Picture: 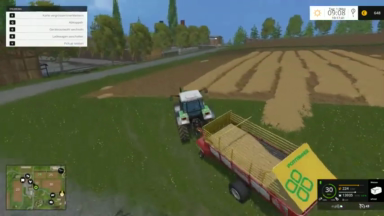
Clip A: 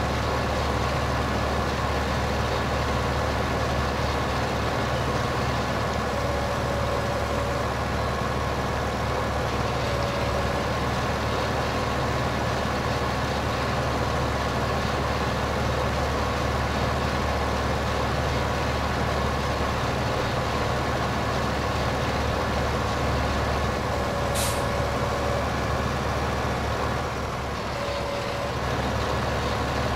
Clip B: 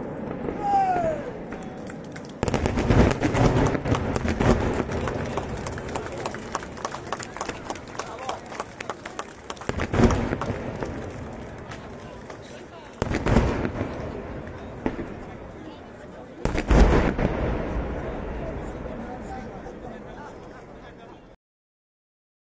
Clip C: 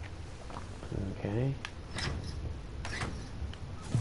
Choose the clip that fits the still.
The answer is A